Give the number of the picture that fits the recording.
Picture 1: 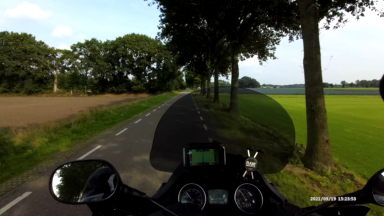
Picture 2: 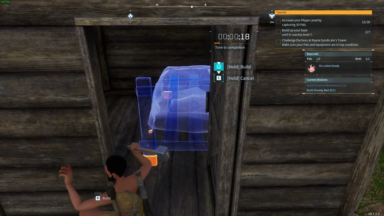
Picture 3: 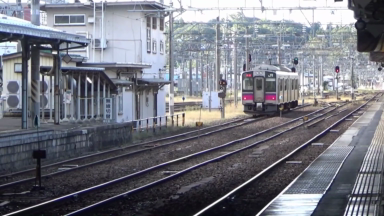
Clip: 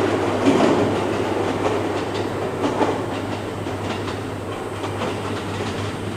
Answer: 3